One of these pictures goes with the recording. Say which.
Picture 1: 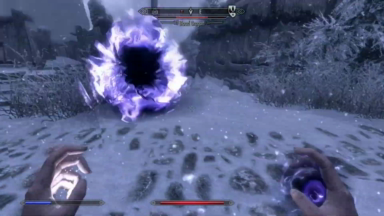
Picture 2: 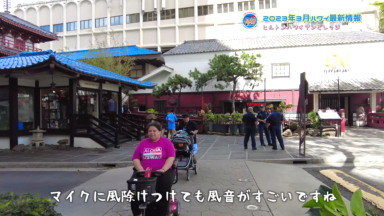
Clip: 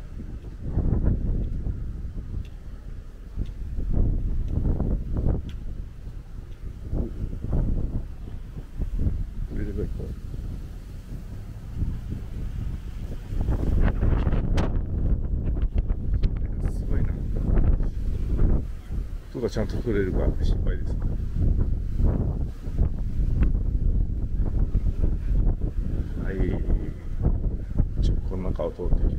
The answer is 2